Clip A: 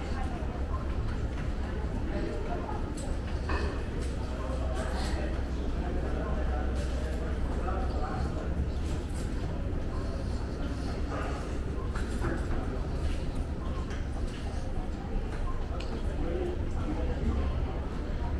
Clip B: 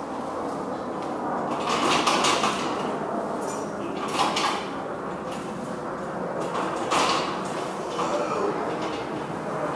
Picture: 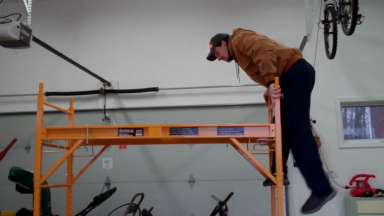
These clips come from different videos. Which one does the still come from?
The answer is B